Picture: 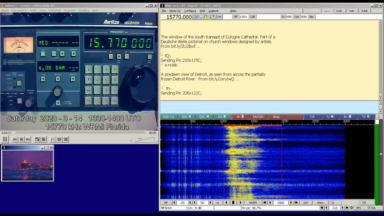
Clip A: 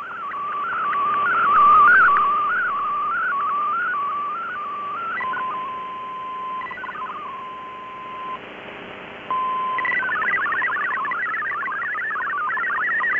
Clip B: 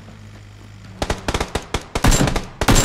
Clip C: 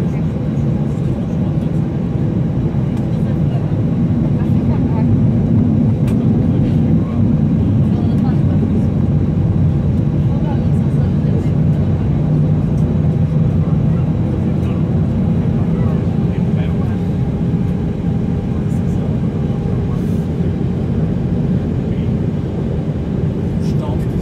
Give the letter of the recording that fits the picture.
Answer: A